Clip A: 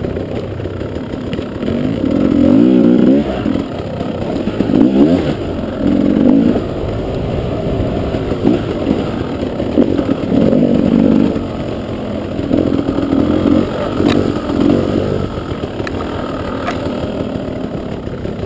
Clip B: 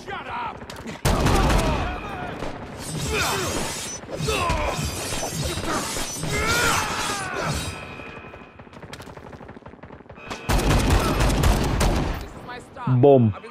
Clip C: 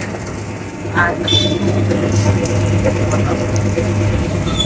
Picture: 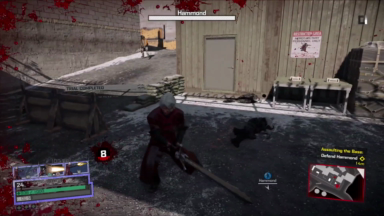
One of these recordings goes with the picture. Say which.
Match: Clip B